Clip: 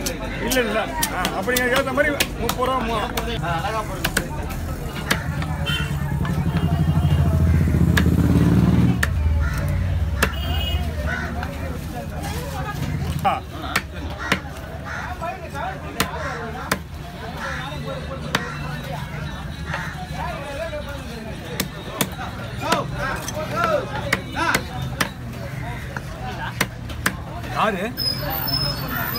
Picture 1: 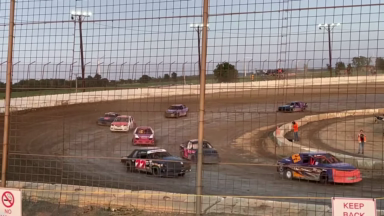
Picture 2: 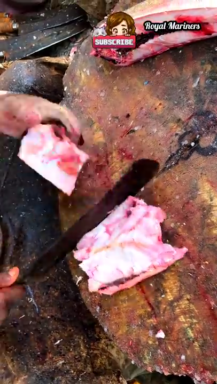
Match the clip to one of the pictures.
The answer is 2